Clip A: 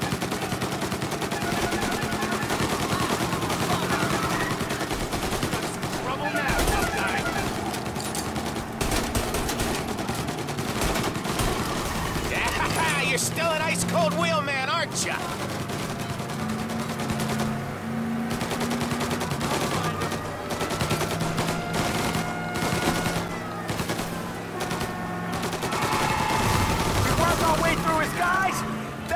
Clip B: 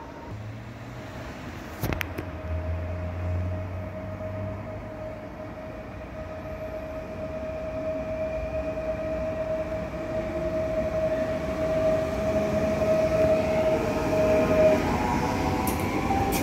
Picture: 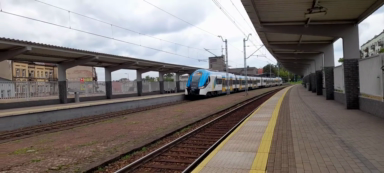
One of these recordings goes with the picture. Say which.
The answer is B